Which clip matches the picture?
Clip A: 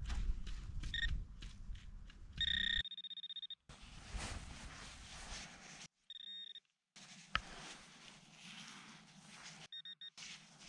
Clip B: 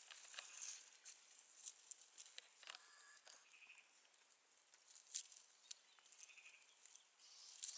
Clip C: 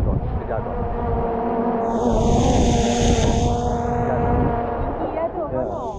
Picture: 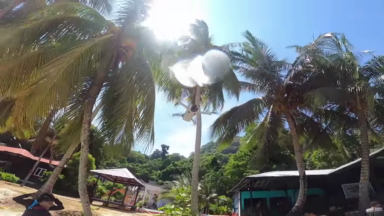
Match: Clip C